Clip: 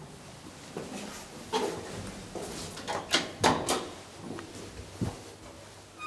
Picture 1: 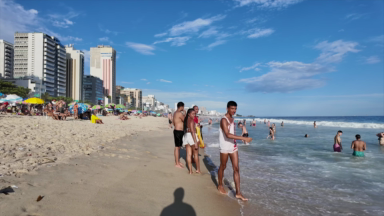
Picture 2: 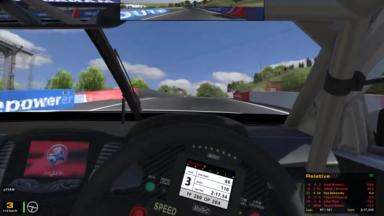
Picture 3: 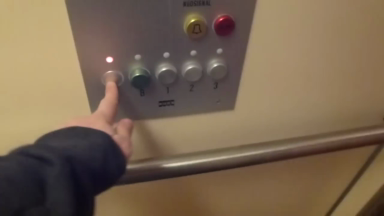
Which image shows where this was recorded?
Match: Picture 3